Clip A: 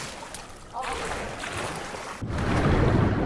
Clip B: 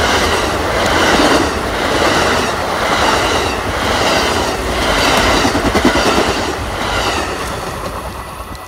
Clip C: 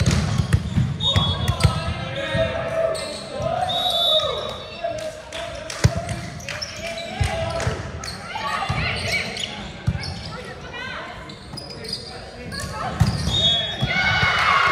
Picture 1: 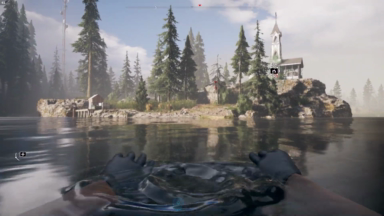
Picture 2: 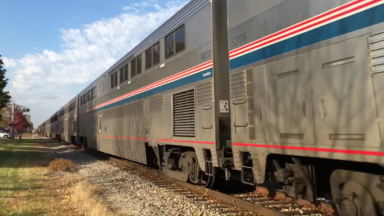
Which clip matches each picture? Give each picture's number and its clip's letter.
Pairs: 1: A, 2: B